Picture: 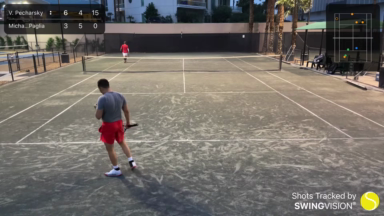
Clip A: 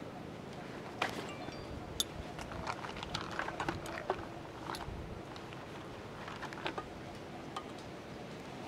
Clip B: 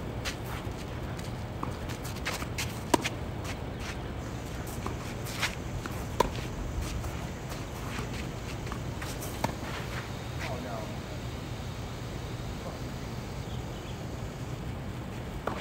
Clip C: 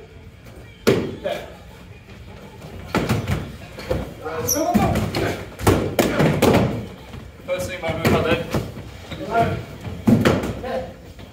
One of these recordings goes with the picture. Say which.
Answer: B